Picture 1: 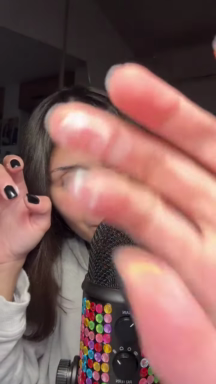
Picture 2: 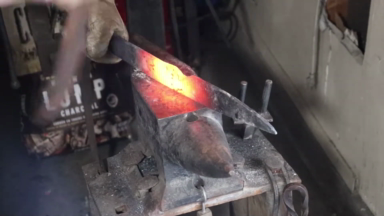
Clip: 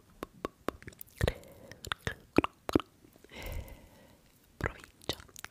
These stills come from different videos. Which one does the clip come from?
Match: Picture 1